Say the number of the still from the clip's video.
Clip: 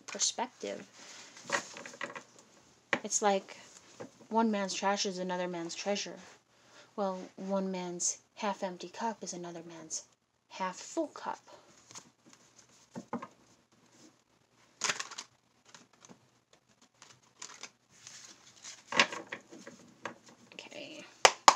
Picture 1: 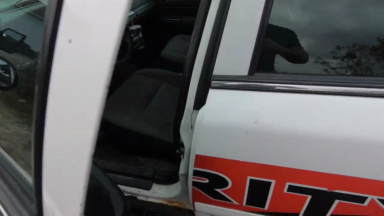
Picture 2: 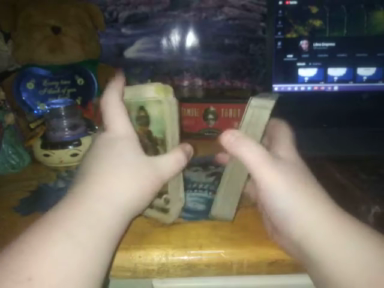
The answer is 2